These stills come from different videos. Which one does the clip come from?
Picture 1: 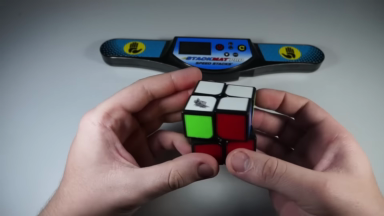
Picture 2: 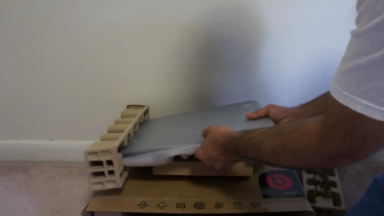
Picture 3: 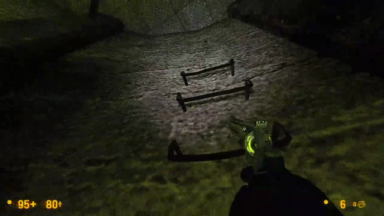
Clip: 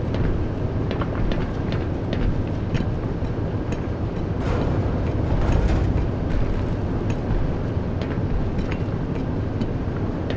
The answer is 3